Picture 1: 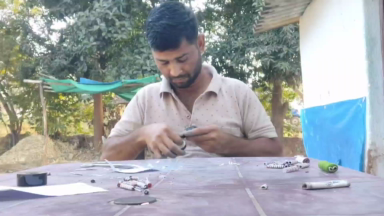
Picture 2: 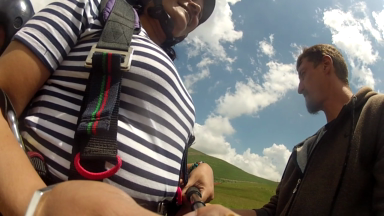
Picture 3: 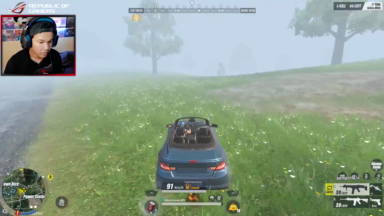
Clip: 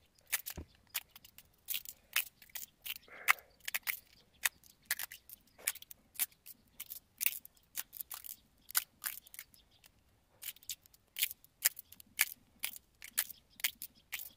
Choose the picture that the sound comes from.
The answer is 1